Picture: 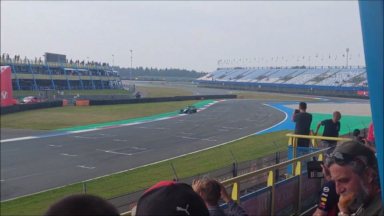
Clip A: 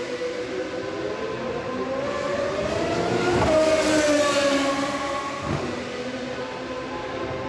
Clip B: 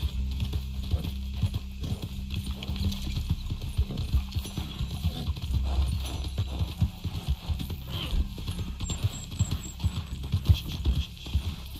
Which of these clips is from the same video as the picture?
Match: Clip A